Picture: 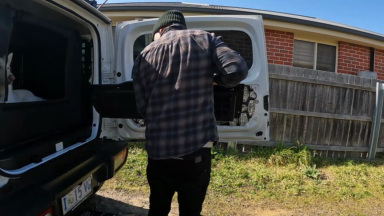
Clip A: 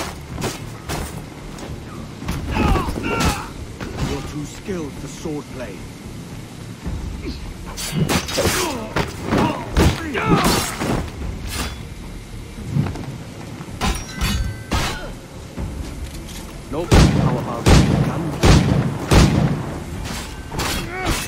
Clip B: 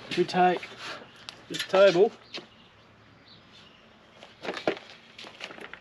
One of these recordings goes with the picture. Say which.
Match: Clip B